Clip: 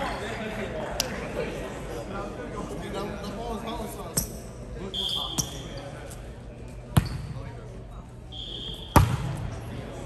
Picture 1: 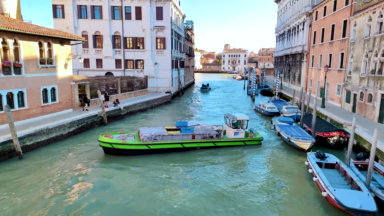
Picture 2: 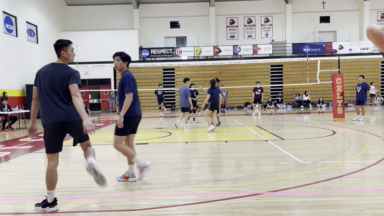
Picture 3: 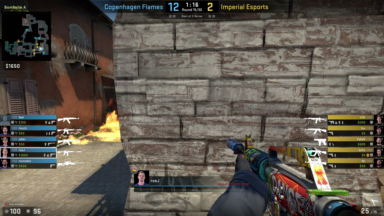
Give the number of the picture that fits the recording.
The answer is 2